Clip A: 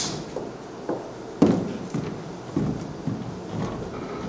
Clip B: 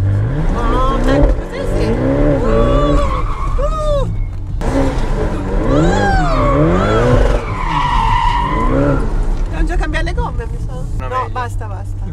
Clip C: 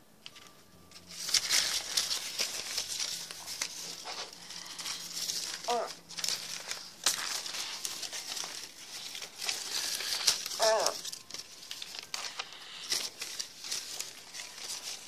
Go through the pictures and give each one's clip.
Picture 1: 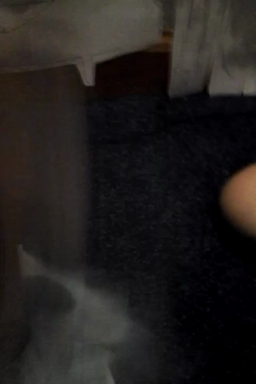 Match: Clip C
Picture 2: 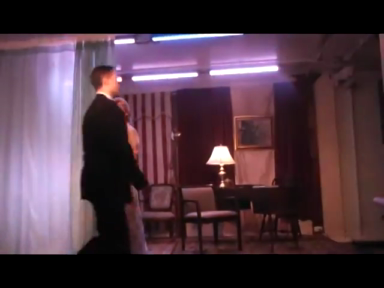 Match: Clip A